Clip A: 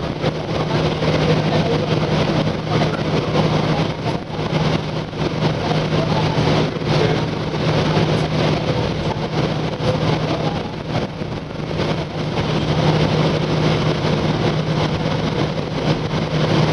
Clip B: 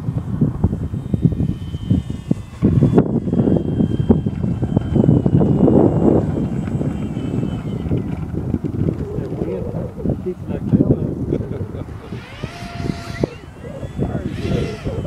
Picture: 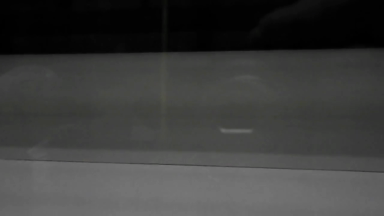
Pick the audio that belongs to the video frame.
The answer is A